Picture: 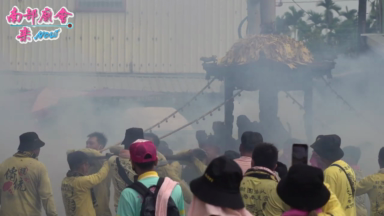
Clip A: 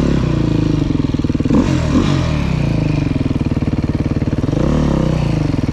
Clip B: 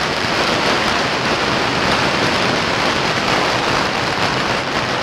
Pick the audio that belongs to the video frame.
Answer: B